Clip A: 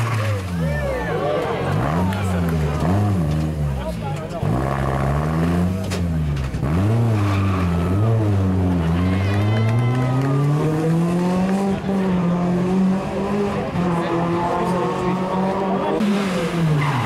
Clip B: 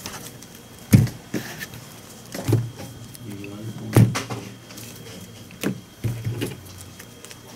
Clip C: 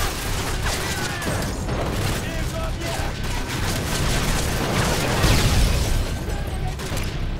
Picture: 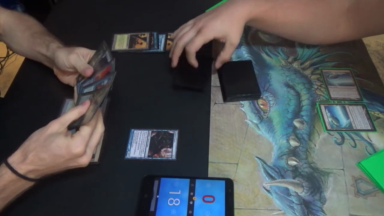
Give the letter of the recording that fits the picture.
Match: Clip B